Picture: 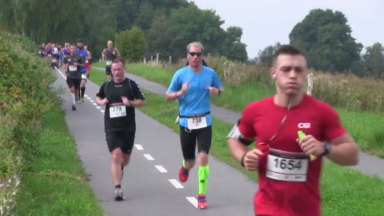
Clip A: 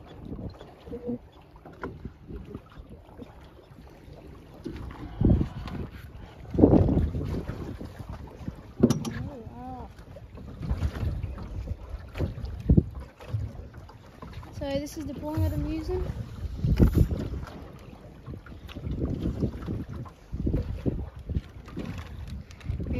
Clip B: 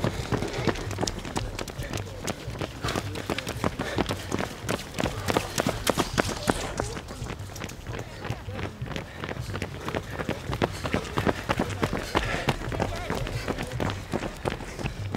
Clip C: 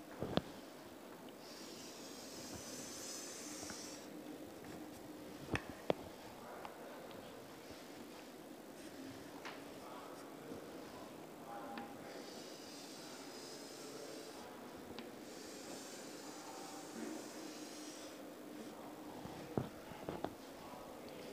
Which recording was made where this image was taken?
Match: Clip B